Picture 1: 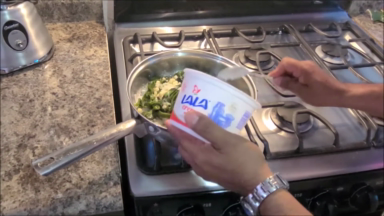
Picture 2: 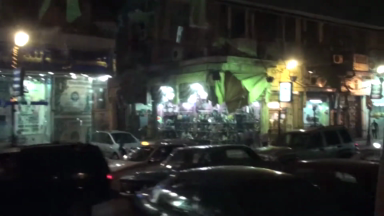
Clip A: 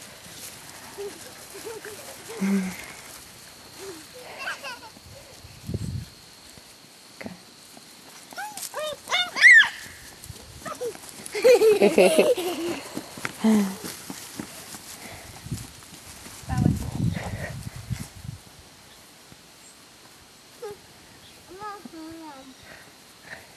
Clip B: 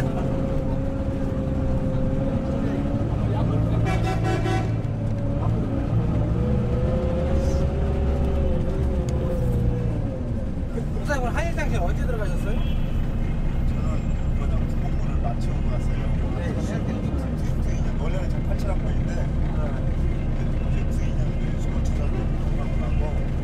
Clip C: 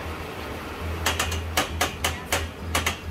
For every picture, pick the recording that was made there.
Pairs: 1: C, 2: B